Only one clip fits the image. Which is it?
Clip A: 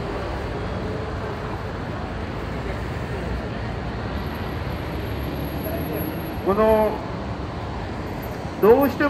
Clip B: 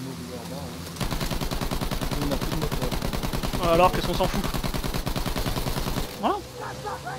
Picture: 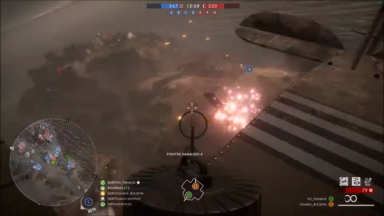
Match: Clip B